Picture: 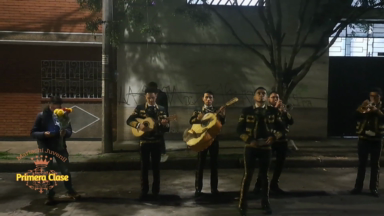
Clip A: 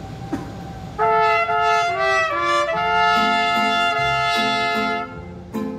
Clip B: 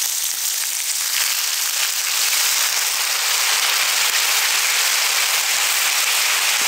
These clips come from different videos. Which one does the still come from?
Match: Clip A